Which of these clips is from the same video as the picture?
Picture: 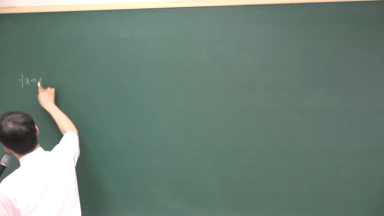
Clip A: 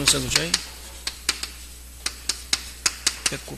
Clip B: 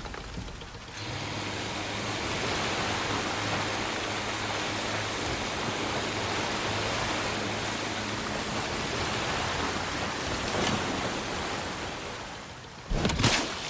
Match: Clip A